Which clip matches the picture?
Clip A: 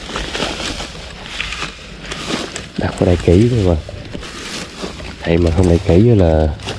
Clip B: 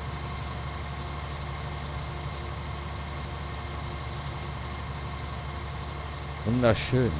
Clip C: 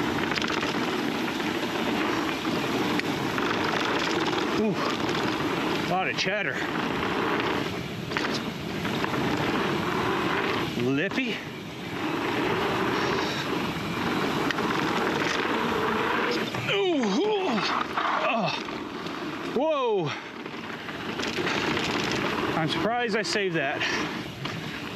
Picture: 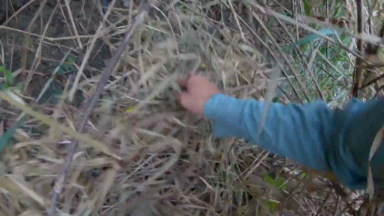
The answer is A